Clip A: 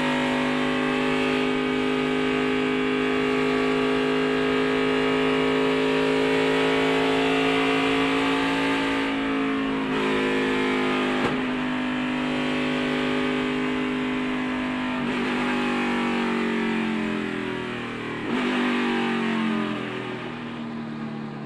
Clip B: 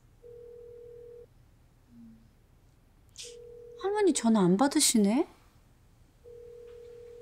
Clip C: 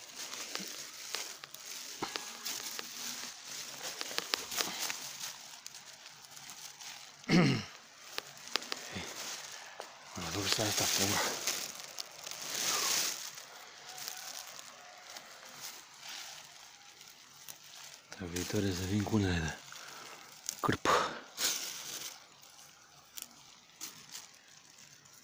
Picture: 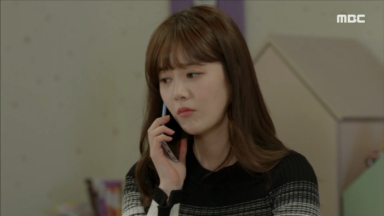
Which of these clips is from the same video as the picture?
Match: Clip B